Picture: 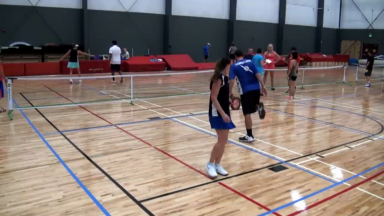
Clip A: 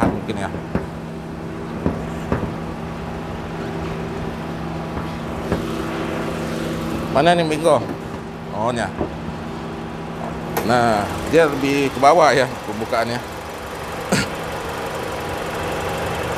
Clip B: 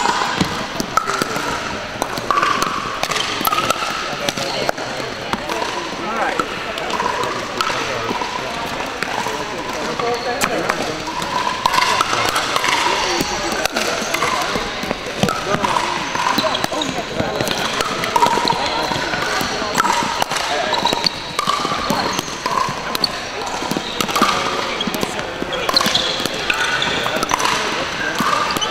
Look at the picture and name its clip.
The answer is B